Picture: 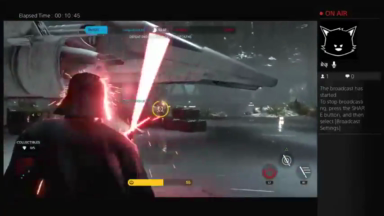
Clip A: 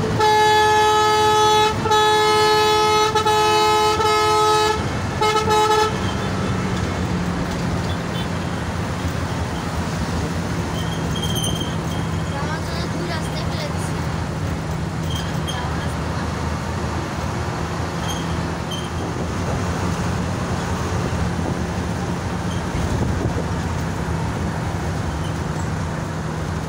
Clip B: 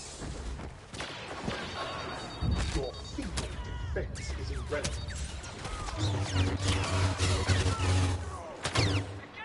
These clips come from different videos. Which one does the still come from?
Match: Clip B